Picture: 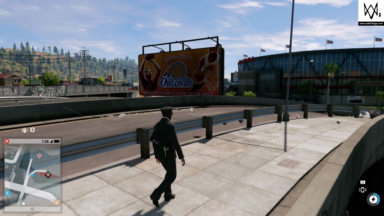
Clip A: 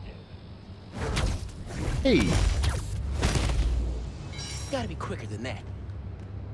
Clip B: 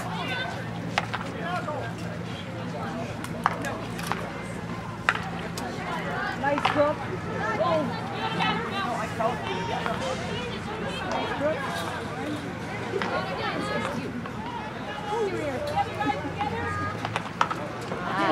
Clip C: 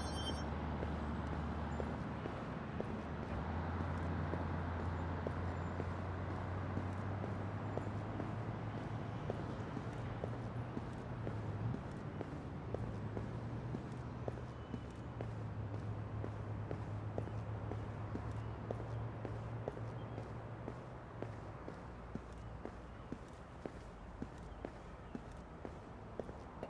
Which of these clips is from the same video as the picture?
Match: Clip C